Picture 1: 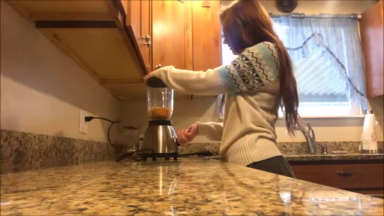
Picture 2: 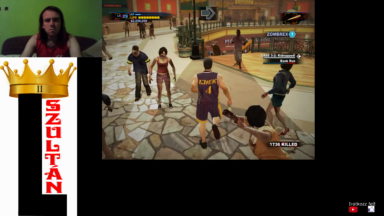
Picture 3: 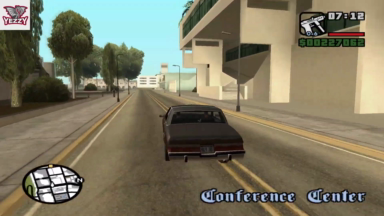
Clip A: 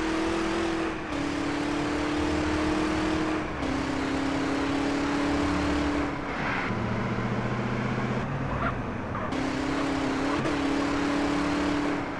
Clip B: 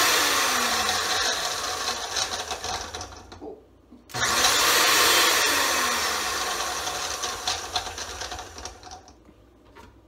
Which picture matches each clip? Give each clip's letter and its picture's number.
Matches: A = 3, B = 1